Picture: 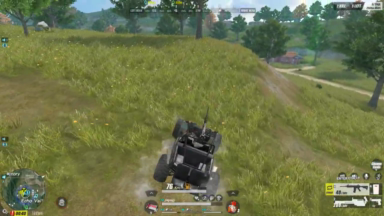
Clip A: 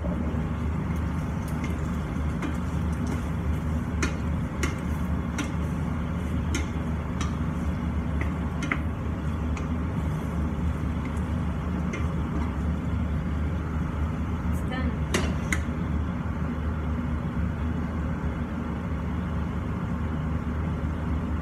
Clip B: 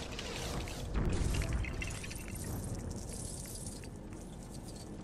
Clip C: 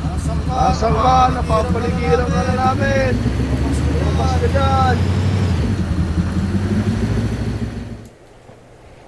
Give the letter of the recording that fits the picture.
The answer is C